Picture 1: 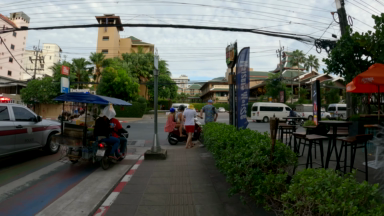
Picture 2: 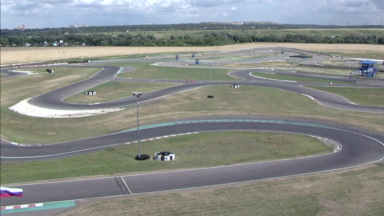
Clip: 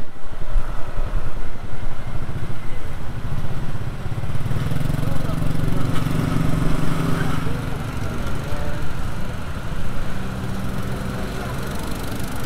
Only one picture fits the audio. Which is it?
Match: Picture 1